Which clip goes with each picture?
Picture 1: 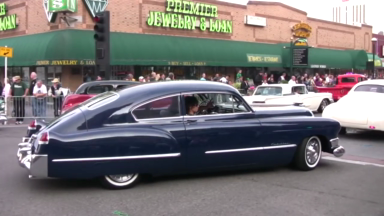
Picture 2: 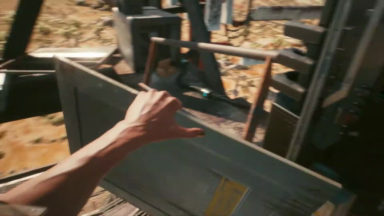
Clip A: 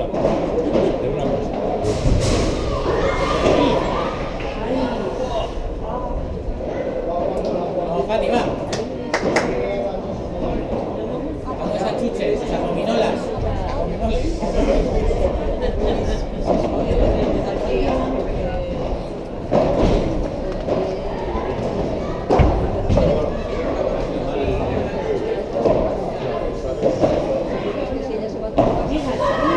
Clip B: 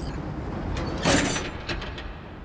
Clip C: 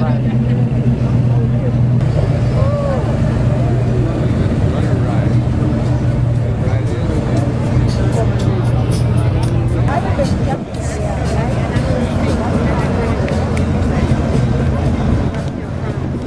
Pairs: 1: C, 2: B